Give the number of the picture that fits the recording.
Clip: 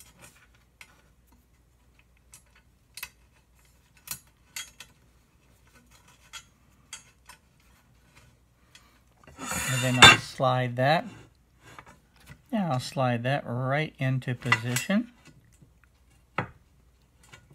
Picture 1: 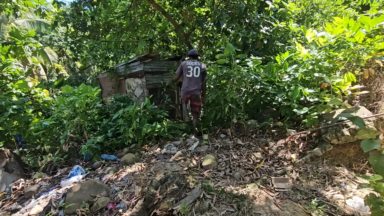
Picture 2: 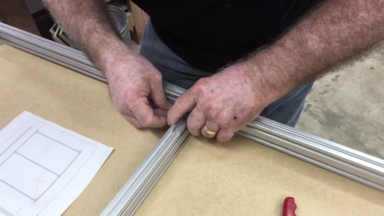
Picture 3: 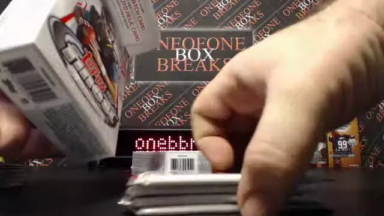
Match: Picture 2